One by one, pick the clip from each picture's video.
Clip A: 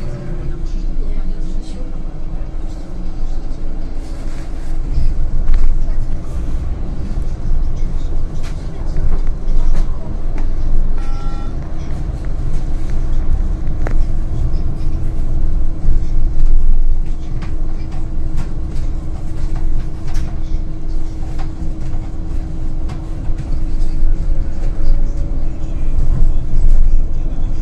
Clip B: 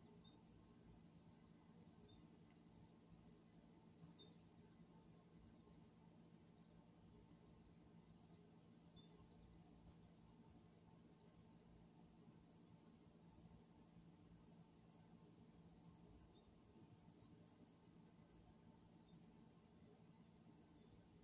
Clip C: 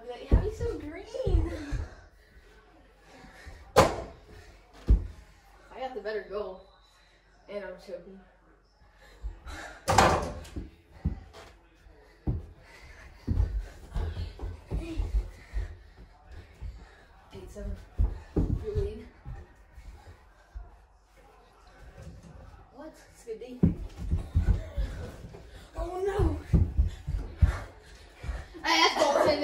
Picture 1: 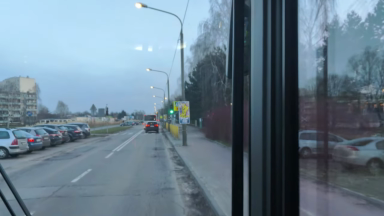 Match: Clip A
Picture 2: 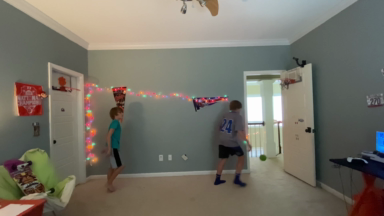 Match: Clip C